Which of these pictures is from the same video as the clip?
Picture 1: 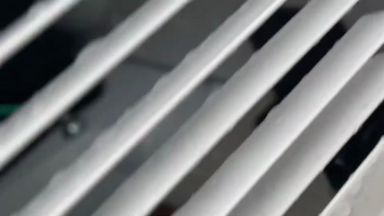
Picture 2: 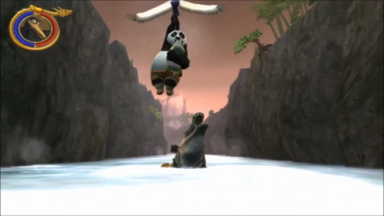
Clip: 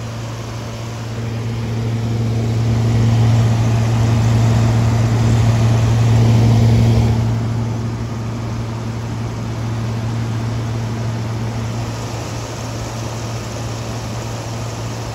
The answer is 1